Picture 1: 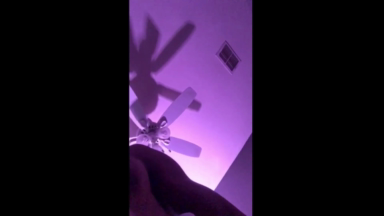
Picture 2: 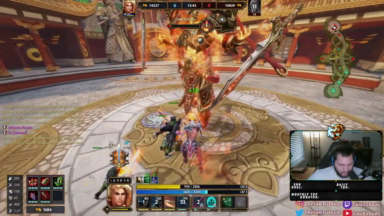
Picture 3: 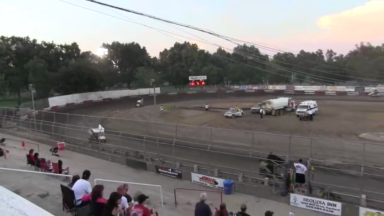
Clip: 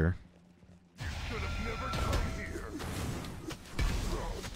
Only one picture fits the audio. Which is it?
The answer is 2